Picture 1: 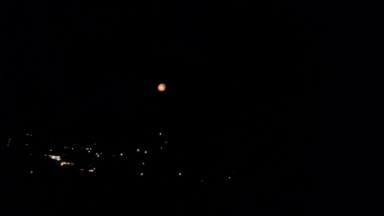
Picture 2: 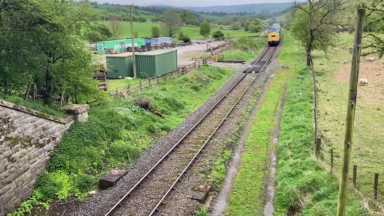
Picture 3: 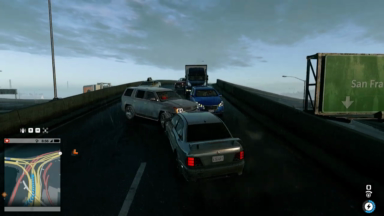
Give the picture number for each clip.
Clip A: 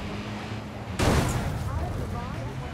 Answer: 3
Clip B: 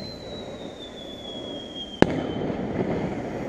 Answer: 1